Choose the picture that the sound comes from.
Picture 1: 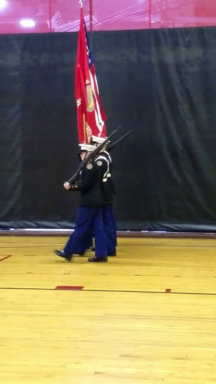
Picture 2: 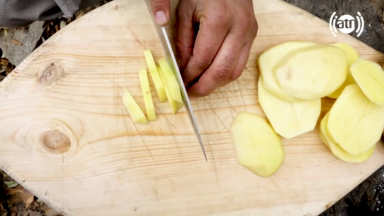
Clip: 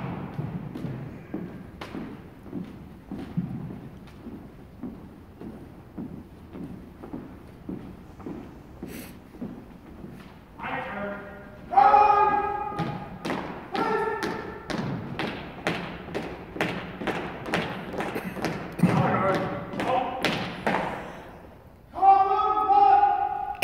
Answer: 1